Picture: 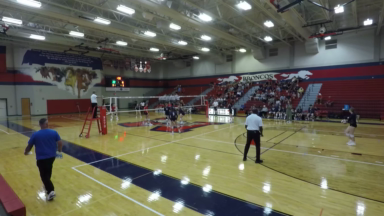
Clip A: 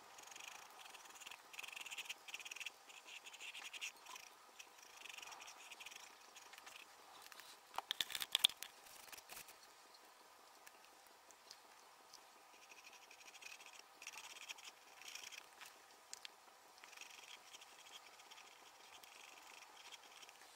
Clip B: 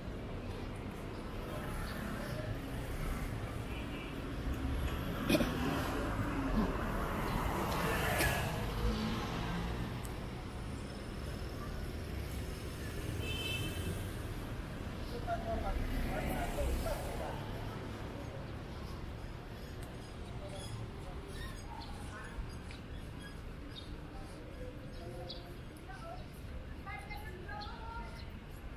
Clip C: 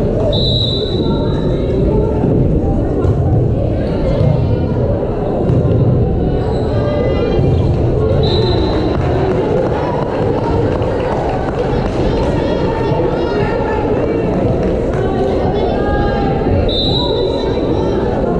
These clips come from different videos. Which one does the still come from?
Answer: C